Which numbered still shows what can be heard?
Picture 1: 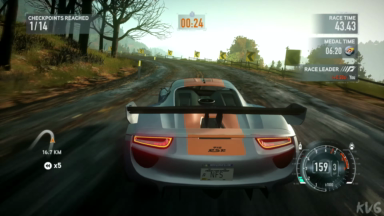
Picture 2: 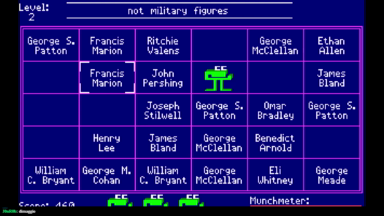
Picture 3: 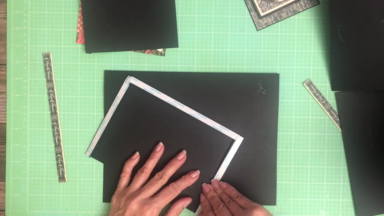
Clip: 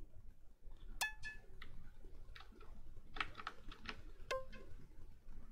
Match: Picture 2